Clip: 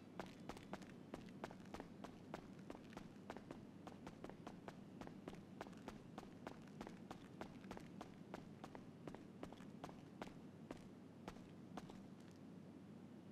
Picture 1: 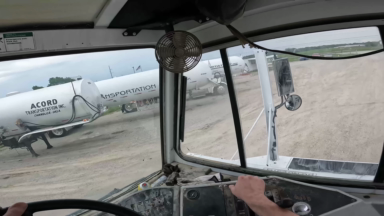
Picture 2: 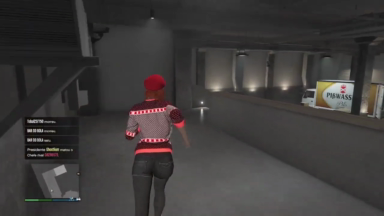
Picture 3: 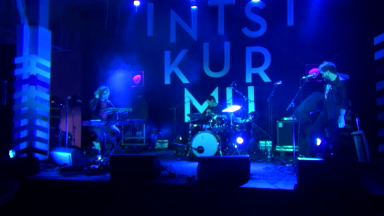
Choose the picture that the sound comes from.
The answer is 2